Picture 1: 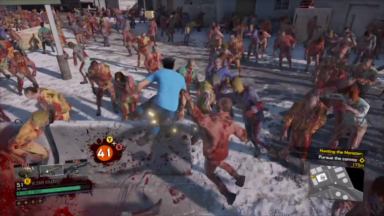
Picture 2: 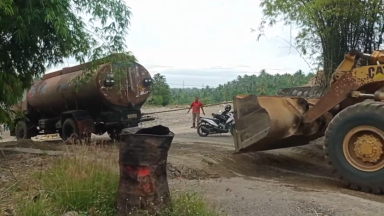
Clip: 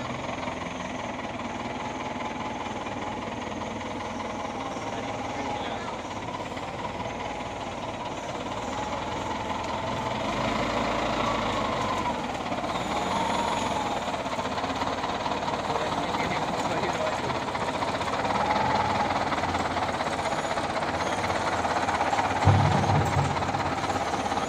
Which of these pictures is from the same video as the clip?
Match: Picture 2